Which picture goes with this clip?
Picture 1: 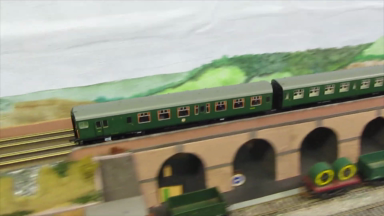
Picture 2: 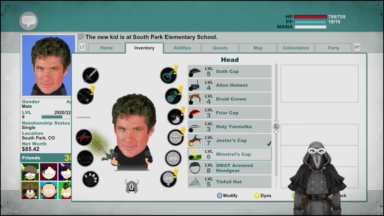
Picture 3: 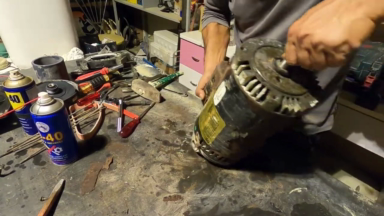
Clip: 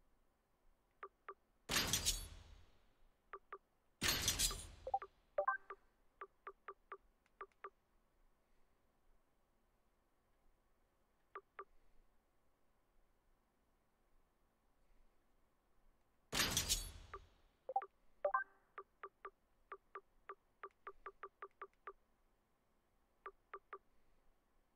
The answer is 2